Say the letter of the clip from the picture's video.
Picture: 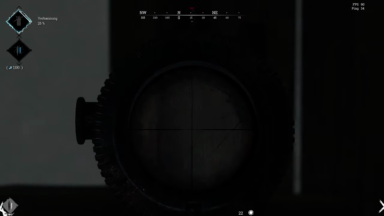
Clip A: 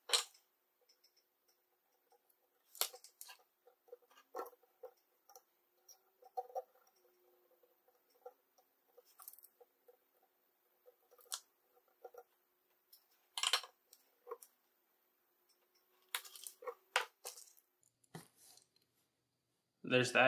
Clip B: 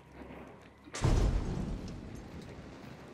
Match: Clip B